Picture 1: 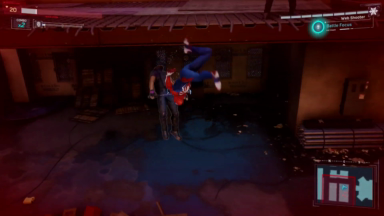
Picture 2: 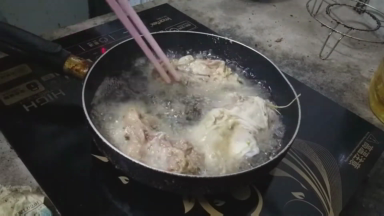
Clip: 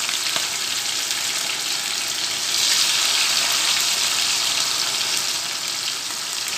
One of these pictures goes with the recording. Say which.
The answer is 2